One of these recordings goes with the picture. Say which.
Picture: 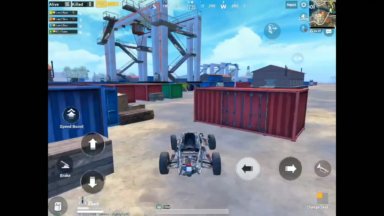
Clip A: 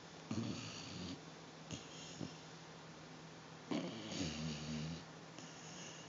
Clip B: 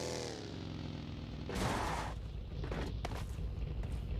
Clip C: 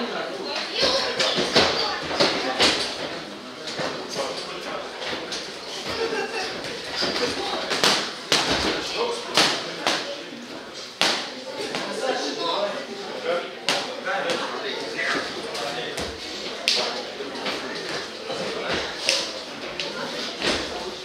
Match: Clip B